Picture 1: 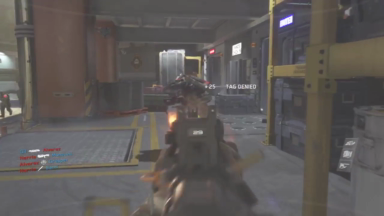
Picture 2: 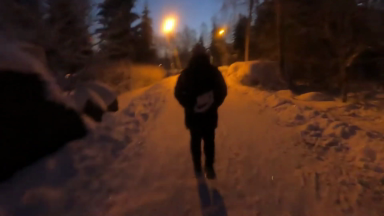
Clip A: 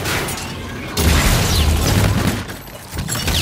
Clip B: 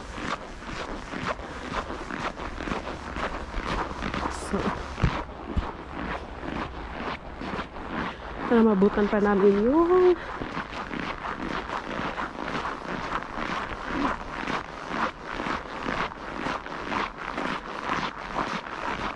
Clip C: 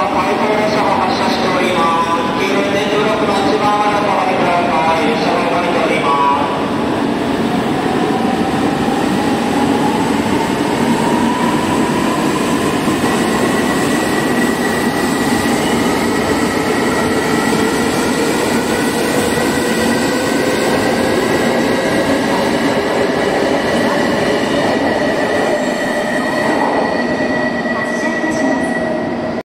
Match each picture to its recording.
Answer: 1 A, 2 B